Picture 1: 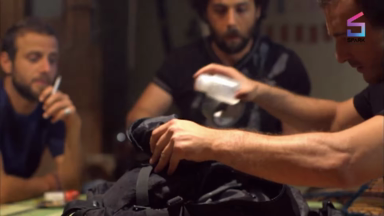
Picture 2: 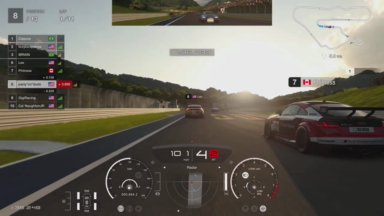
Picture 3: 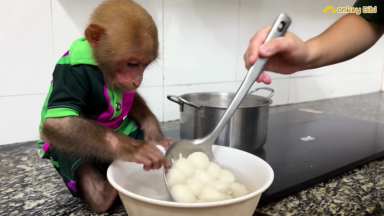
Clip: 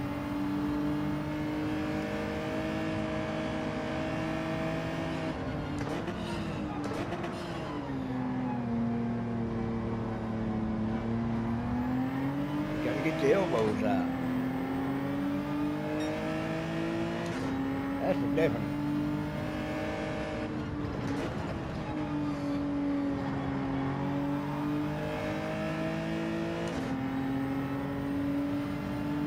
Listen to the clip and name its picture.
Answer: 2